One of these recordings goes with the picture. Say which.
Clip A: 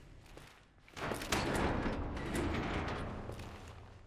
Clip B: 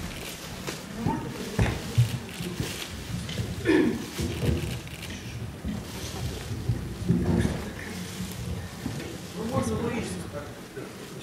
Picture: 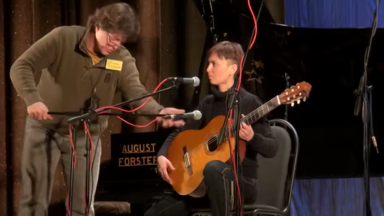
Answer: B